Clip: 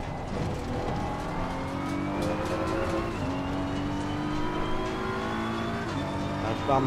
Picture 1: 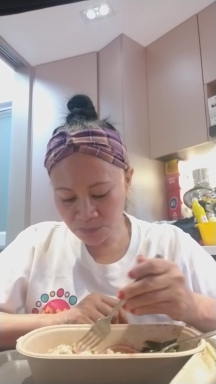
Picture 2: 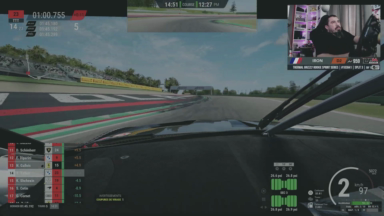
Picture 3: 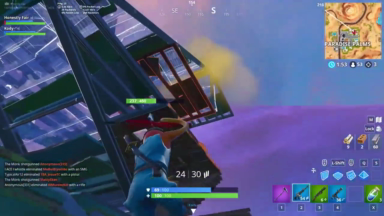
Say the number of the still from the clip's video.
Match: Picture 2